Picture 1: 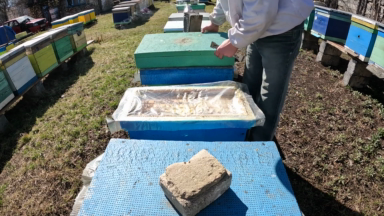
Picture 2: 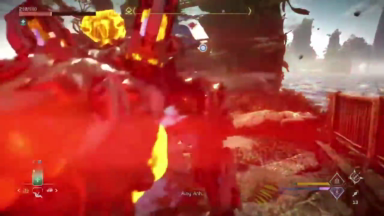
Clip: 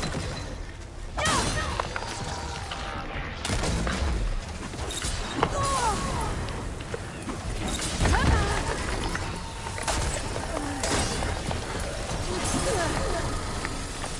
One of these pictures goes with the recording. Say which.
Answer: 2